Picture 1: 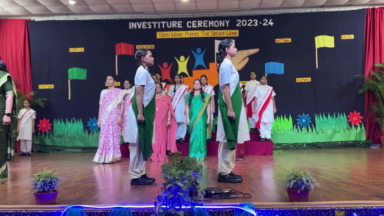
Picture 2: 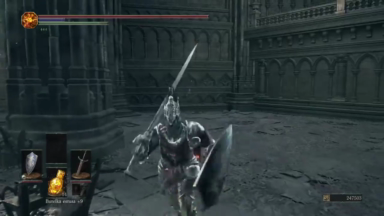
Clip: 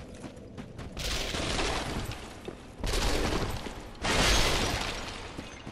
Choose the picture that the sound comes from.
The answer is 2